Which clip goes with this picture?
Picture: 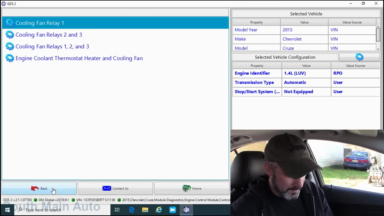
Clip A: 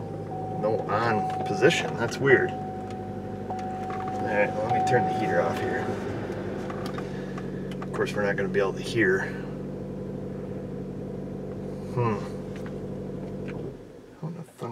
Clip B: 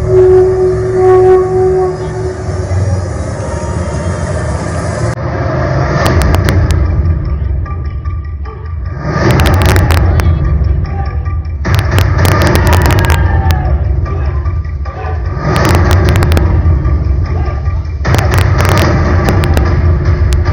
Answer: A